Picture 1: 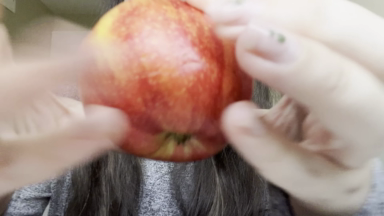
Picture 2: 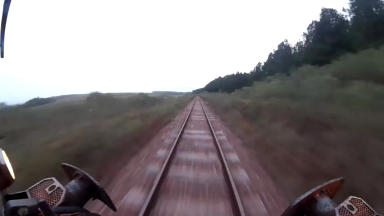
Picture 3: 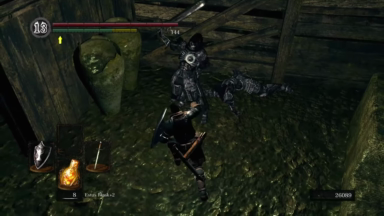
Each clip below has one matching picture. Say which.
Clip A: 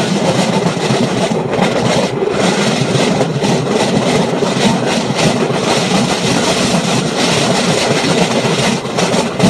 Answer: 2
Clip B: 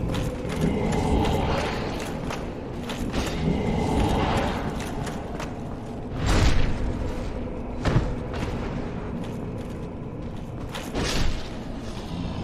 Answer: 3